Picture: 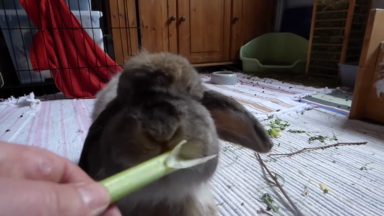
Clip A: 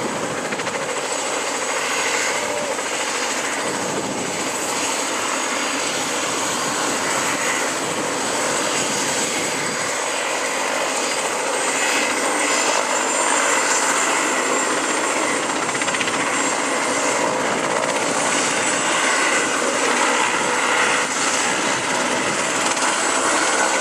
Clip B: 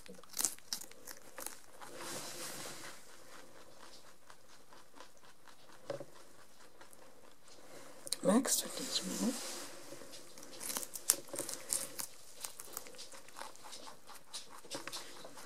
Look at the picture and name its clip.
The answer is B